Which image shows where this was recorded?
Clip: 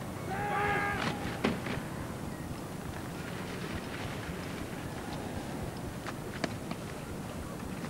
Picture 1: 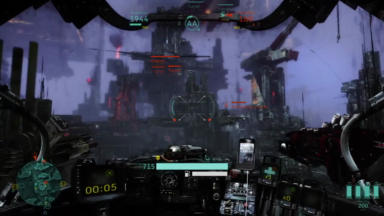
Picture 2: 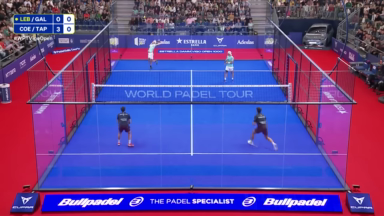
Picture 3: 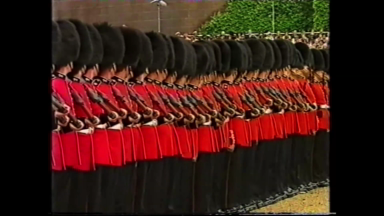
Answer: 3